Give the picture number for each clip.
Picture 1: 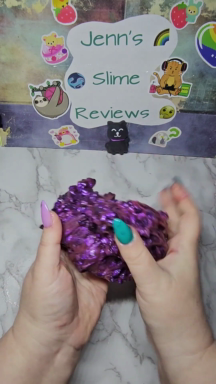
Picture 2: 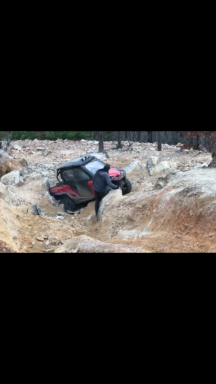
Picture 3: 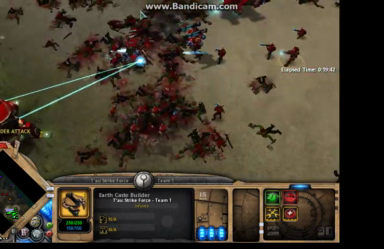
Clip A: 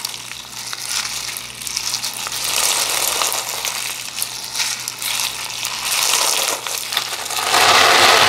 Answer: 1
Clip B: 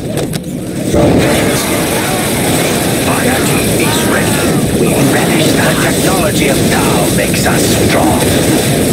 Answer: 3